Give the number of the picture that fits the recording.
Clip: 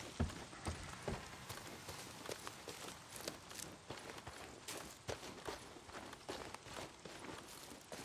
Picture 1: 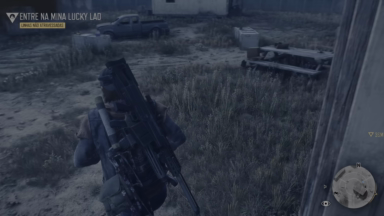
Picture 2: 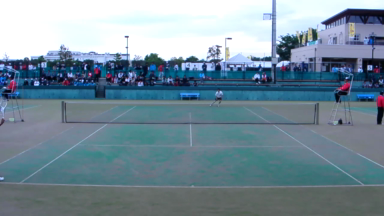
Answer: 1